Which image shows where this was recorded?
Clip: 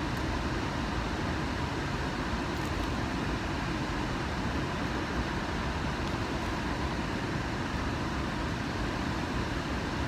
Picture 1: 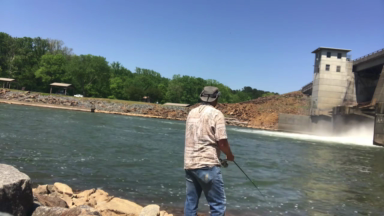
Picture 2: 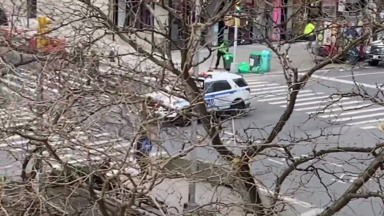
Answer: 1